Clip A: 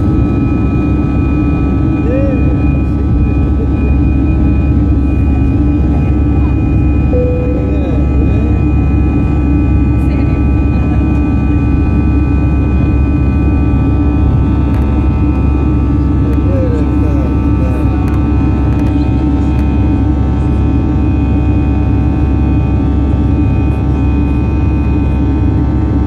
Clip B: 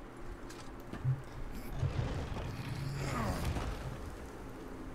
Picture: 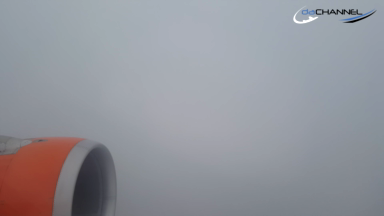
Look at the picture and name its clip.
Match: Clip A